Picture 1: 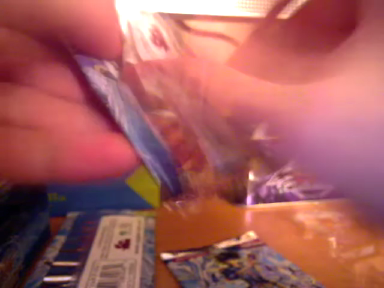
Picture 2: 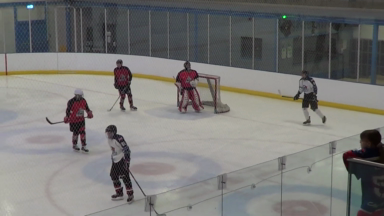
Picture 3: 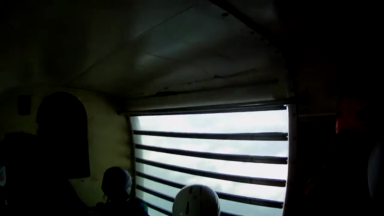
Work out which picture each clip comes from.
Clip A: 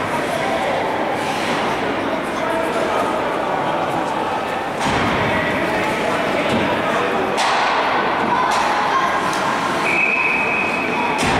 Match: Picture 2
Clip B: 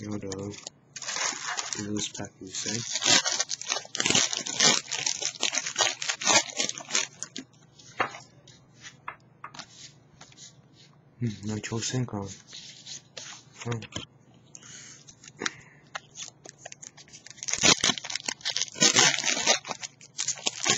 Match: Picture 1